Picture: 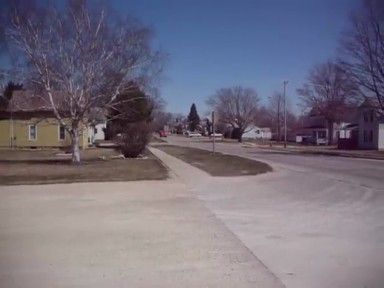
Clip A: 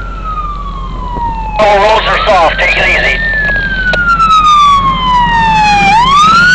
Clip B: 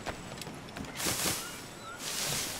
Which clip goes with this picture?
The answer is A